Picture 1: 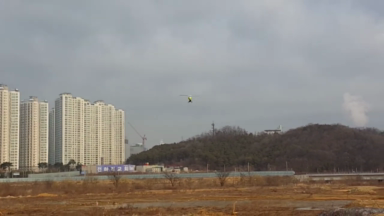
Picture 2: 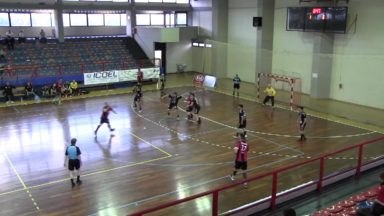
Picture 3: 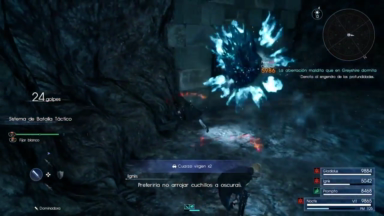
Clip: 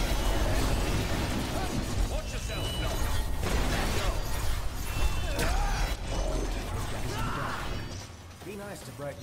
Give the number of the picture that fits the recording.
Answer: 3